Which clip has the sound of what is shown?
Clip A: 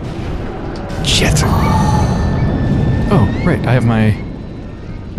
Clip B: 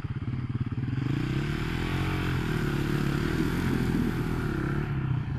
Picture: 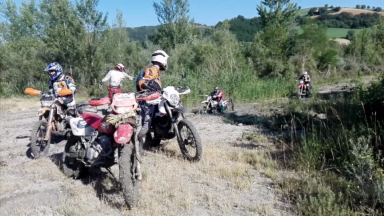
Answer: B